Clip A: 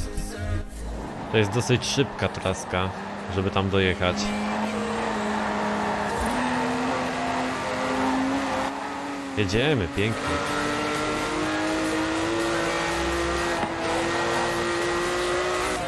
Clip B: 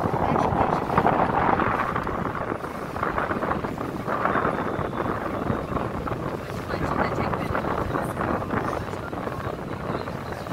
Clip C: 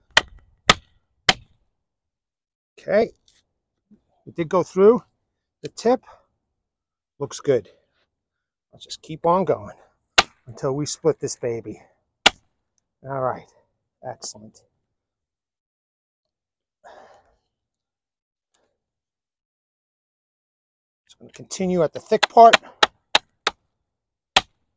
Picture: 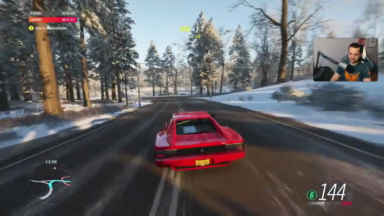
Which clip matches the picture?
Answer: A